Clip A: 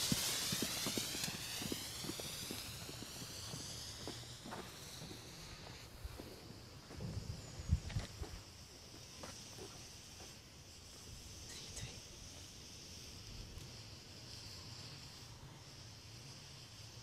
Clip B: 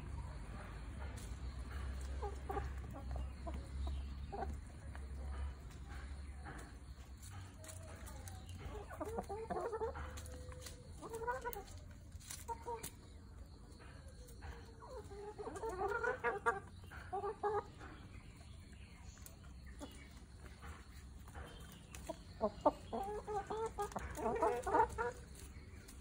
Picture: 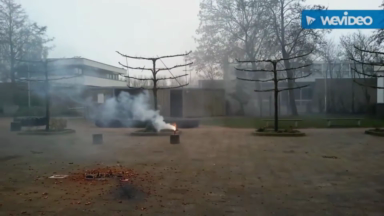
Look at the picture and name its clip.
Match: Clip A